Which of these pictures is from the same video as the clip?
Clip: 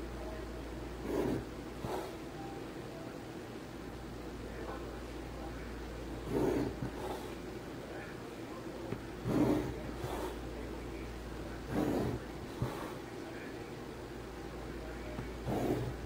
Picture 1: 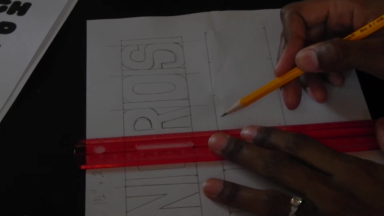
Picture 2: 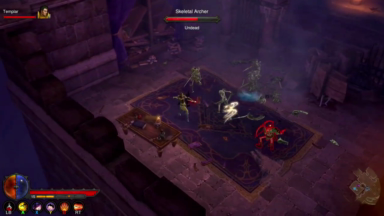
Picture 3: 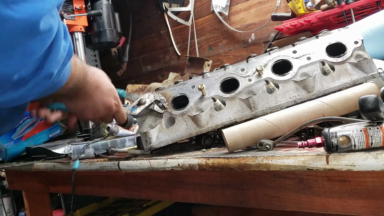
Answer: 1